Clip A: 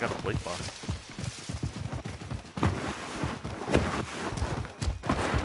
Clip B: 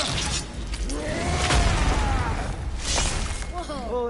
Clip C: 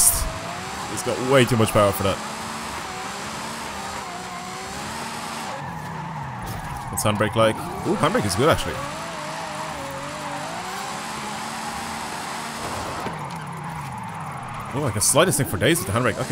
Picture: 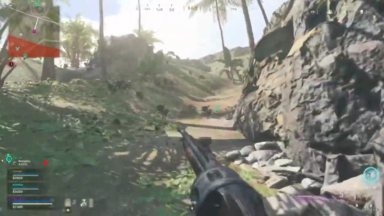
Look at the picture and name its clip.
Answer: A